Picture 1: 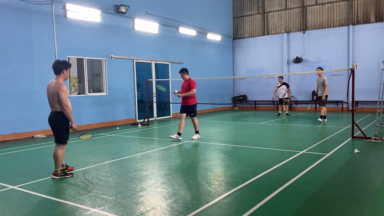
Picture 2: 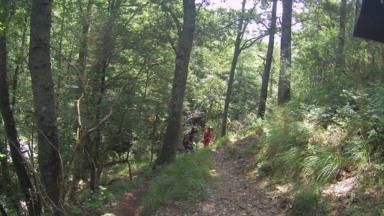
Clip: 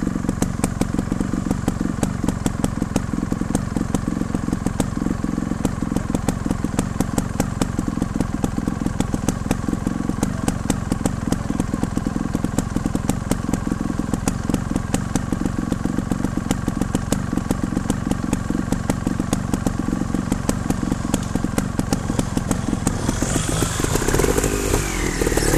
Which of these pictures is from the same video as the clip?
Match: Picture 2